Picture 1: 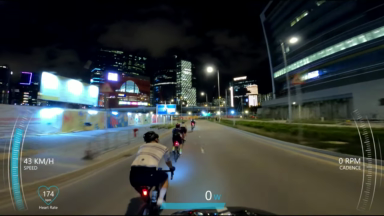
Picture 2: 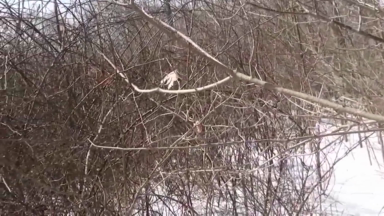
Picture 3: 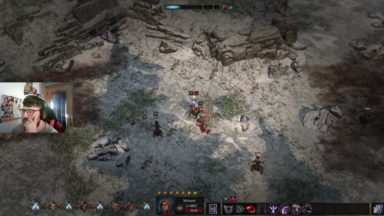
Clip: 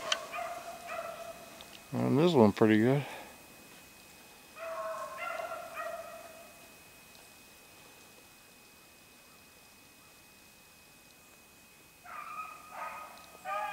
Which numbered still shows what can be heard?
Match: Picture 2